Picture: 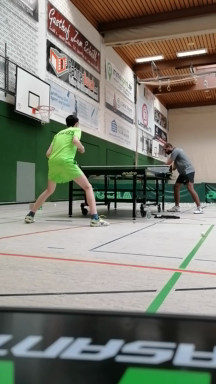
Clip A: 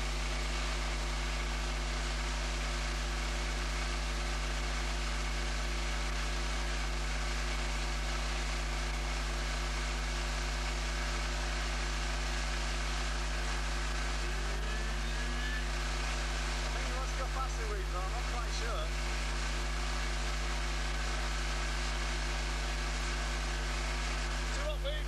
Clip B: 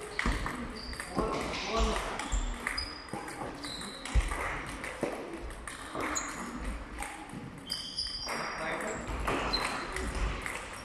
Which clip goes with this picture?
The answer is B